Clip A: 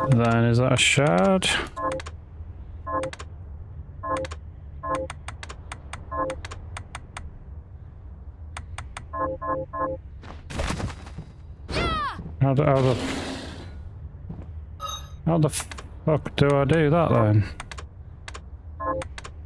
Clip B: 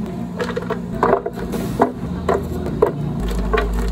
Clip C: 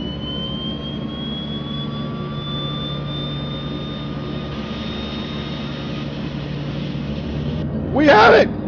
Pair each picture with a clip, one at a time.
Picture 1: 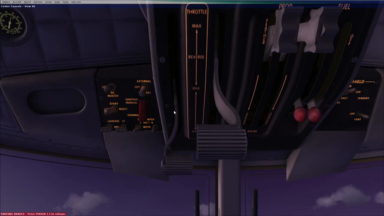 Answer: C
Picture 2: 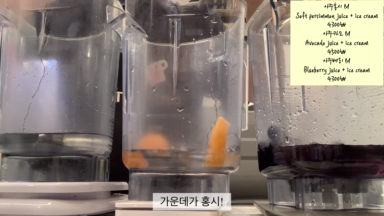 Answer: B